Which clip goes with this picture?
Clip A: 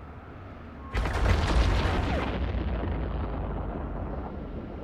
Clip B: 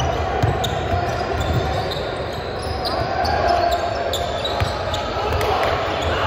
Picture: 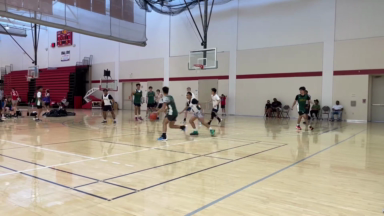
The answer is B